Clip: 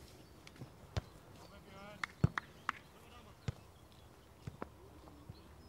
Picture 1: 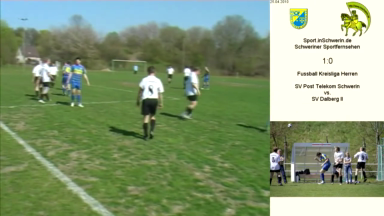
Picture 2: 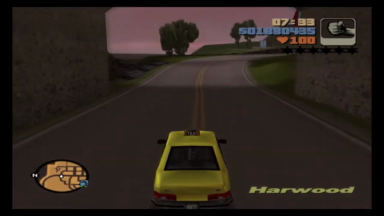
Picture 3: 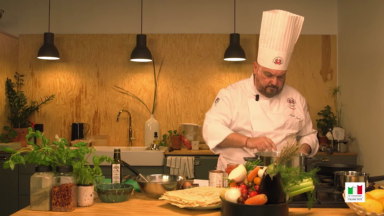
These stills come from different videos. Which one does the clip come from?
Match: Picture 1